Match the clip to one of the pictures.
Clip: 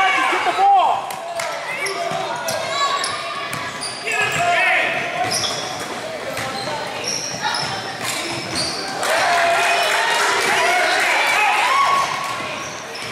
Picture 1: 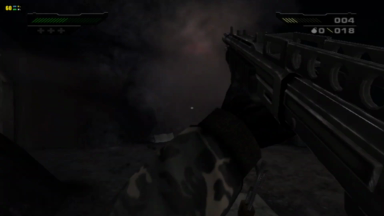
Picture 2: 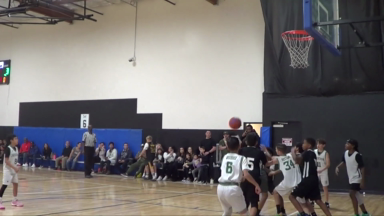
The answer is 2